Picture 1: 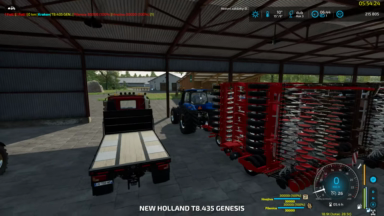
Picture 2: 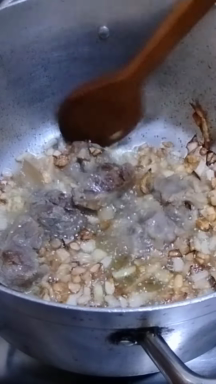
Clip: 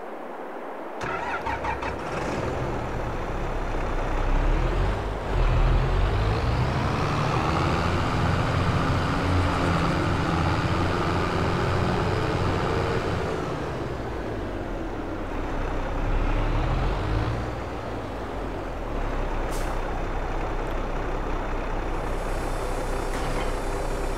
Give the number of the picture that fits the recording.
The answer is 1